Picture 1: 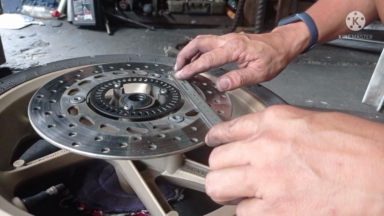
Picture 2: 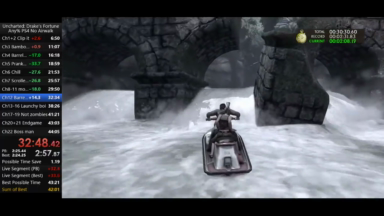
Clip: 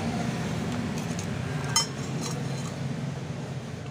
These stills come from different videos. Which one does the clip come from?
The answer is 1